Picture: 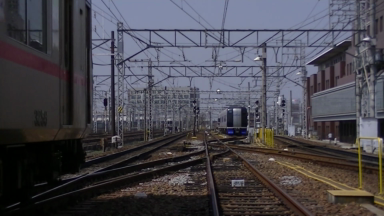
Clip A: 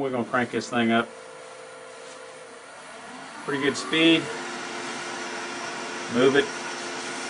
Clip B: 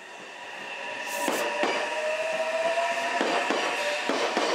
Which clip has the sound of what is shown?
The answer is B